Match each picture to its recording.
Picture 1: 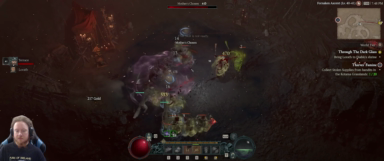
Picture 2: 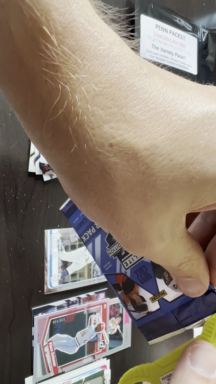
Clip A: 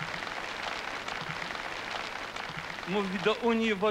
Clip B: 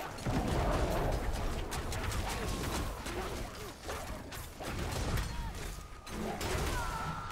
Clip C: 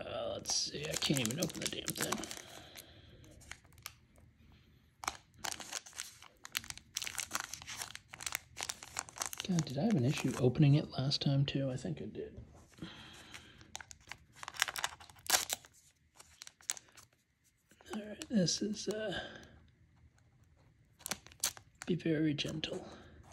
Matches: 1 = B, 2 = C